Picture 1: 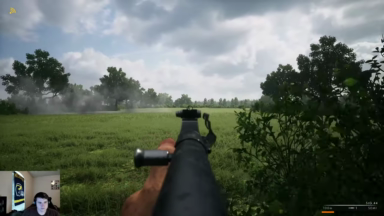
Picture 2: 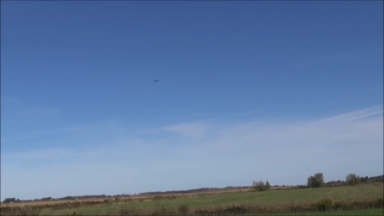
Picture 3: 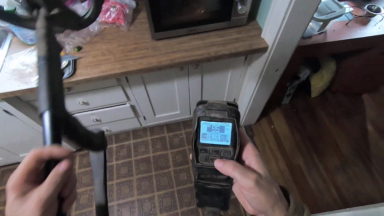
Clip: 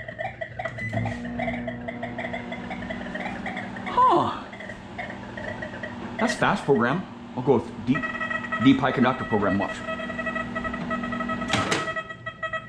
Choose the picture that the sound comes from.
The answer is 3